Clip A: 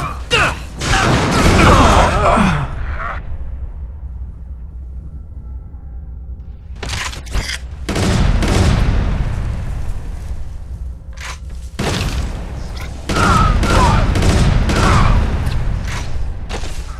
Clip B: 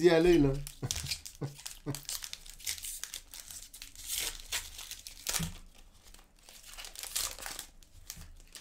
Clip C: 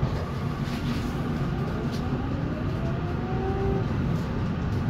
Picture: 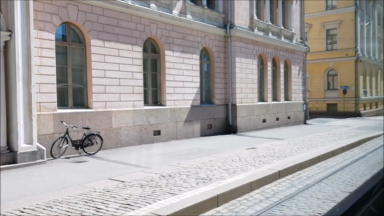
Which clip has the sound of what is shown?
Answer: C